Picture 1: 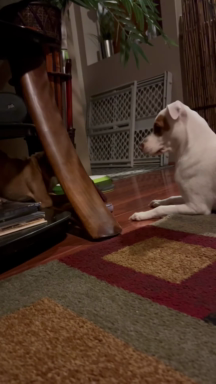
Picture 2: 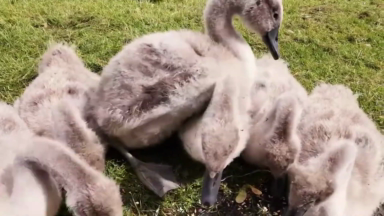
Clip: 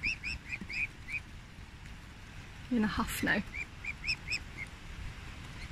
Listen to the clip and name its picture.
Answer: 2